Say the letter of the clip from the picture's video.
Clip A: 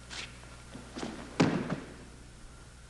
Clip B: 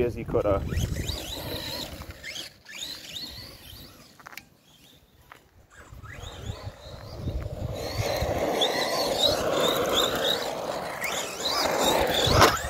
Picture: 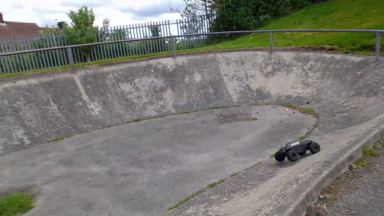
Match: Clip B